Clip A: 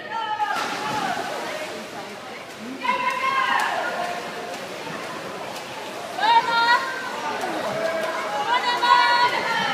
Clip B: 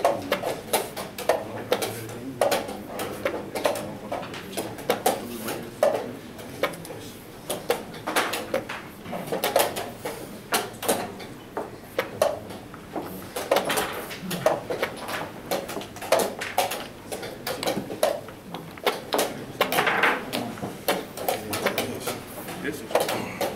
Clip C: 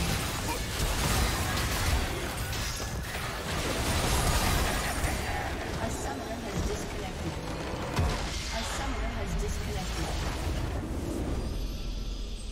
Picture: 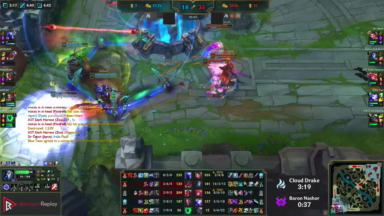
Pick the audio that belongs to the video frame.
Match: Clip C